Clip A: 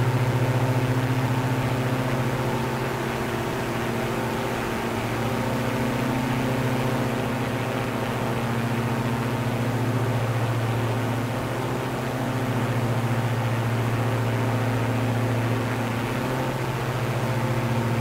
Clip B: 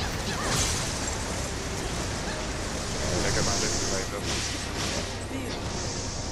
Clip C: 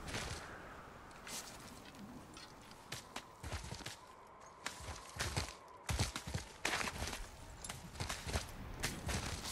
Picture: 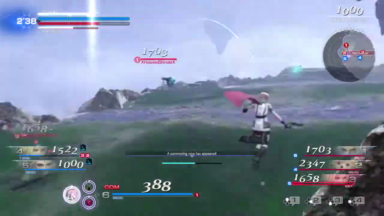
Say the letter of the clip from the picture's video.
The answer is B